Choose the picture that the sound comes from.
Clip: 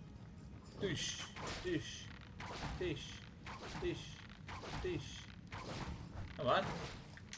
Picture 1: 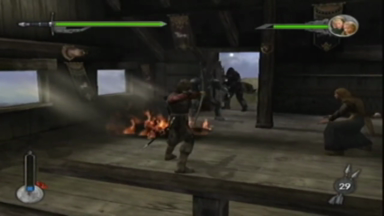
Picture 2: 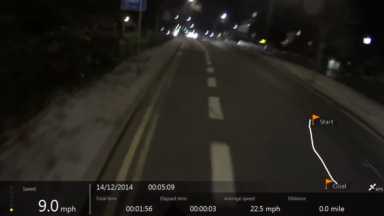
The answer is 1